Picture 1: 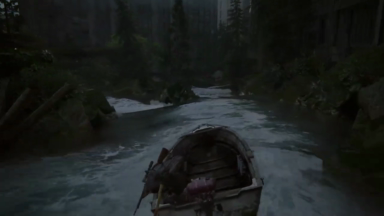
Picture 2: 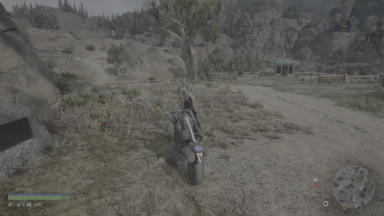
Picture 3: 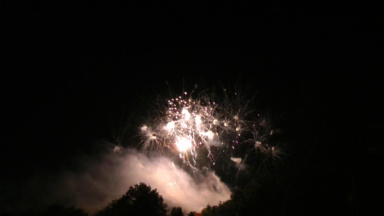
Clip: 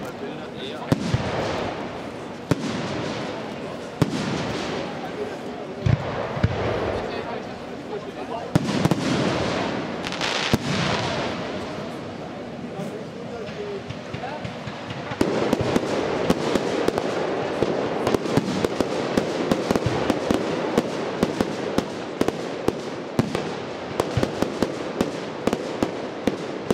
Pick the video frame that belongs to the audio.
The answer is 3